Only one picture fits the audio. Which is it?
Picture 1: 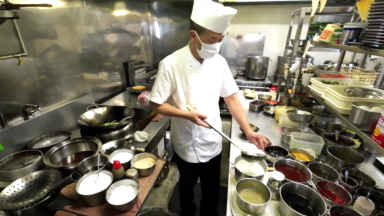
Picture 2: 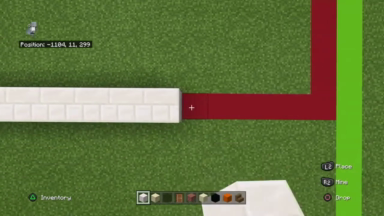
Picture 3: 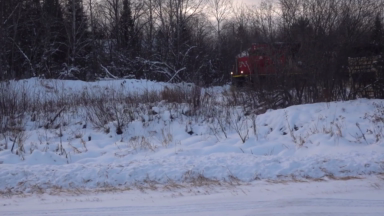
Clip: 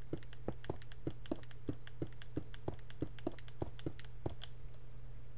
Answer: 2